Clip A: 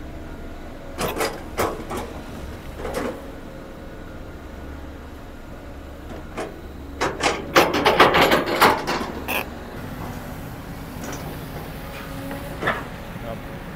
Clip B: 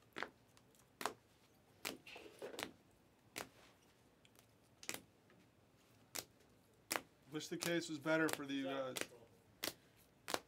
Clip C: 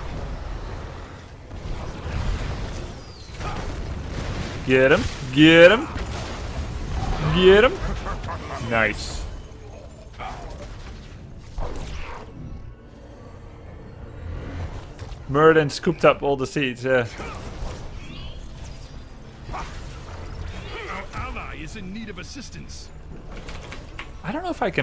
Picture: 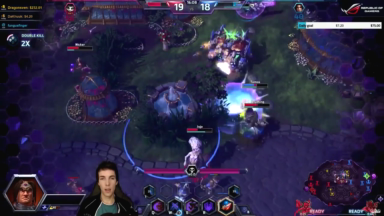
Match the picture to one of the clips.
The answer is C